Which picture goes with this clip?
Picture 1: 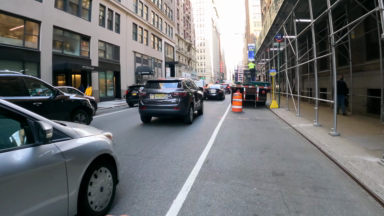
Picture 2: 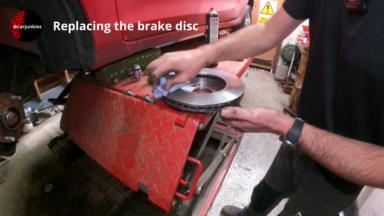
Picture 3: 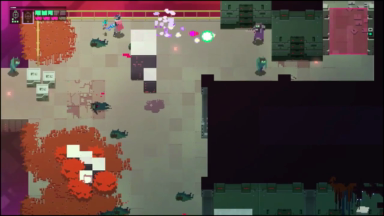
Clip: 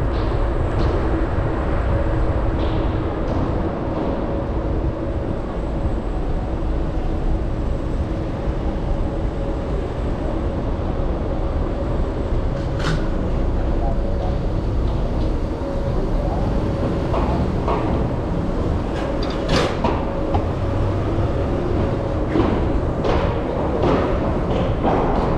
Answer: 1